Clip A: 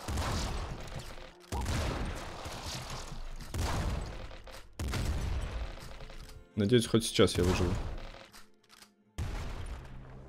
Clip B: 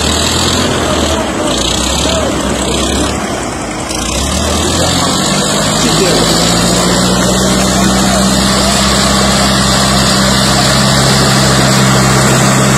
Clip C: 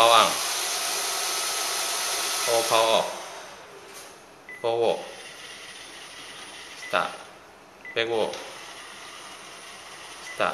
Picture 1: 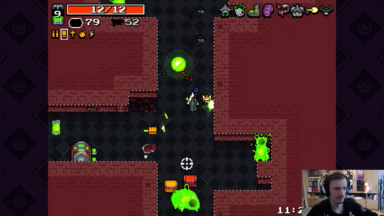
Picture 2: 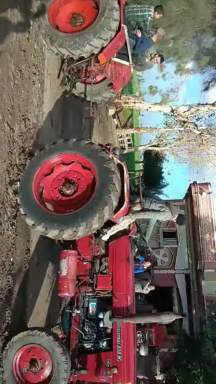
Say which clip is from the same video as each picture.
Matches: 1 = A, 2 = B